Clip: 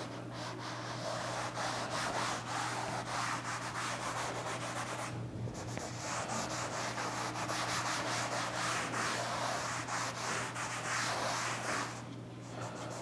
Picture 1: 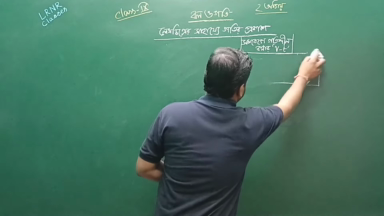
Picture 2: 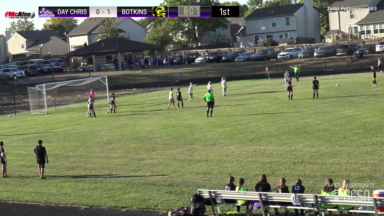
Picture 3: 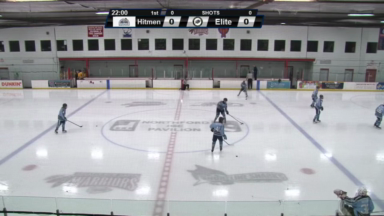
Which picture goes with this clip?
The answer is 1